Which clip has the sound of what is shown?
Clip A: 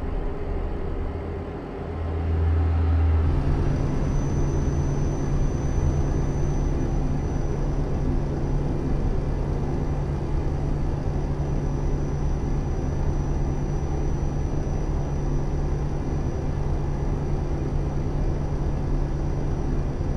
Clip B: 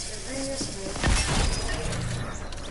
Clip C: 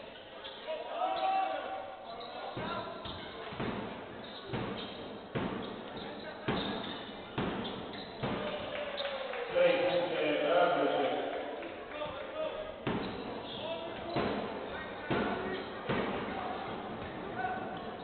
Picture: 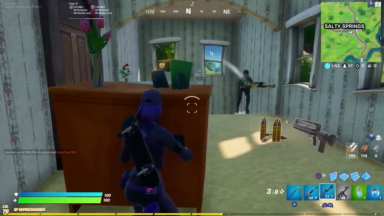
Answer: B